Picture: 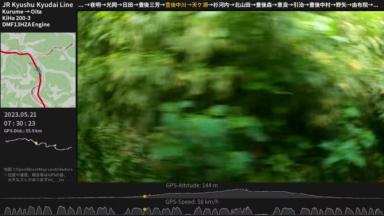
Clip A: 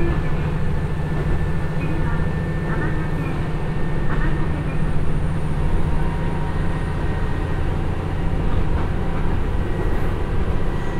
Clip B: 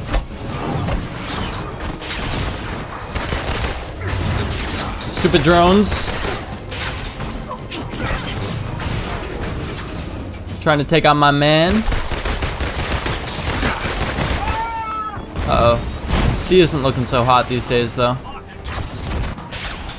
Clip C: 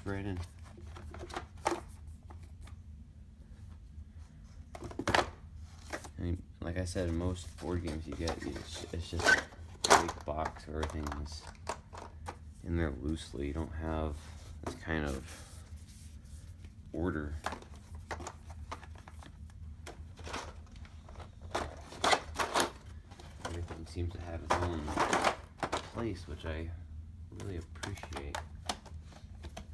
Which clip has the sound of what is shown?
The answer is A